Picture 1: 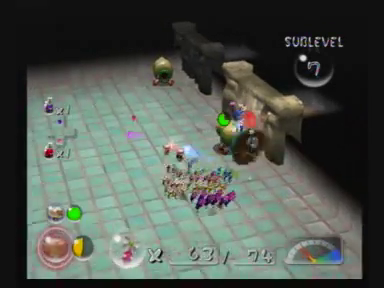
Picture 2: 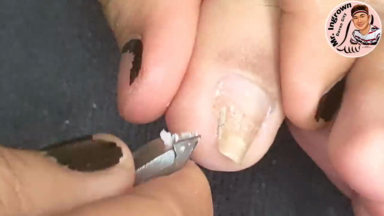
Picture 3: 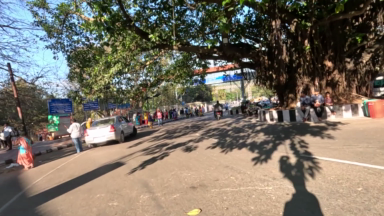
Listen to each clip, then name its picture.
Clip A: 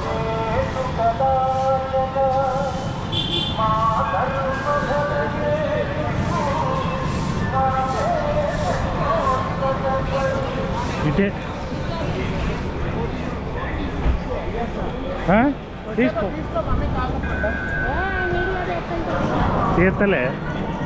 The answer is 3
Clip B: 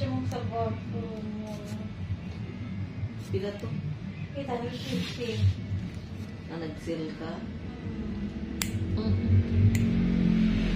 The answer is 2